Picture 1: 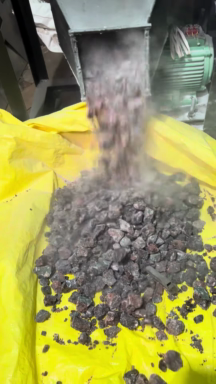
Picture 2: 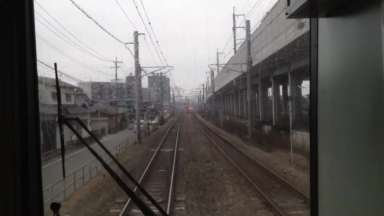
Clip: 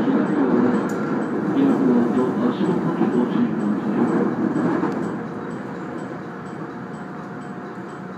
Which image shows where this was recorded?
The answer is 2